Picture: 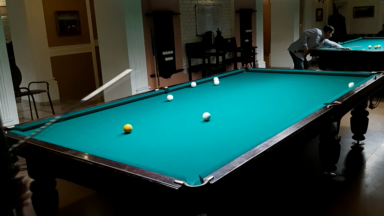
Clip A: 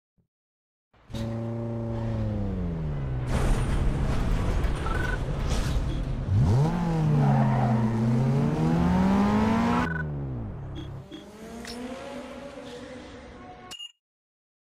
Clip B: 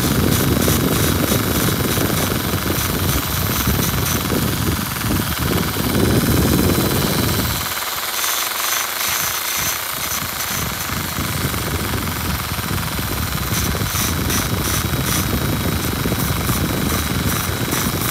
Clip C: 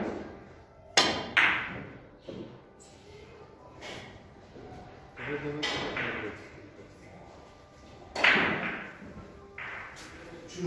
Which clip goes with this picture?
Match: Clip C